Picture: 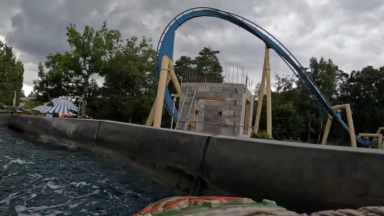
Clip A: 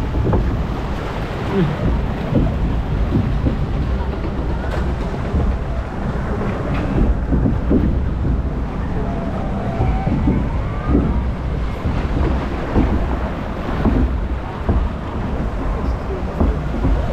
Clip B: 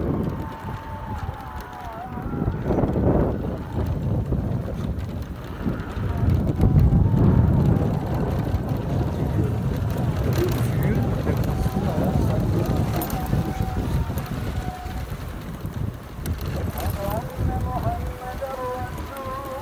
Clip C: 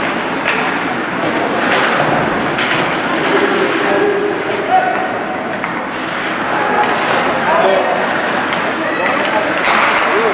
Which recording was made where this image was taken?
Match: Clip A